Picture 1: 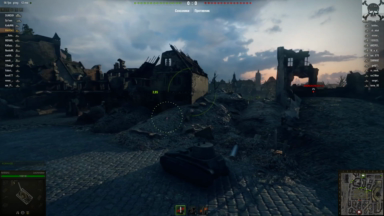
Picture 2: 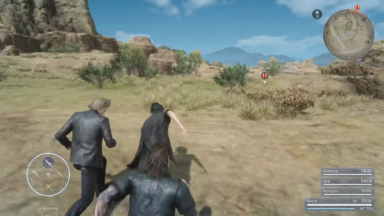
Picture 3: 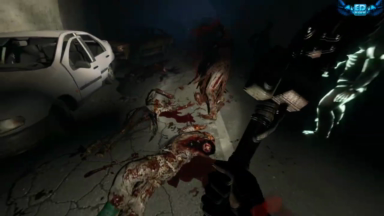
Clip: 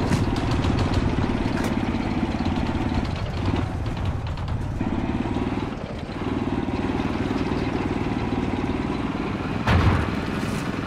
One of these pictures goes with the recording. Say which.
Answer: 1